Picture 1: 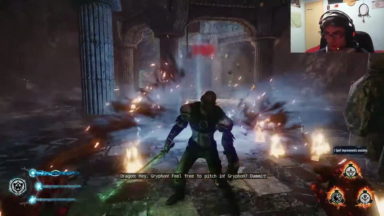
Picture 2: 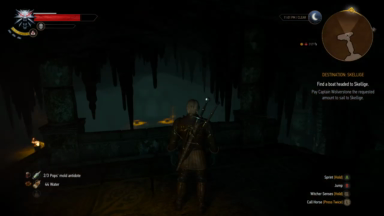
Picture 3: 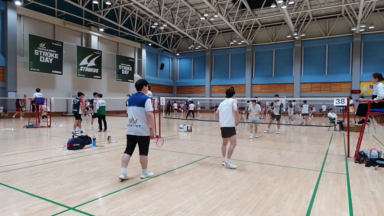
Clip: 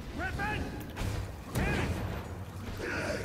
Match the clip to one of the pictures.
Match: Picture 1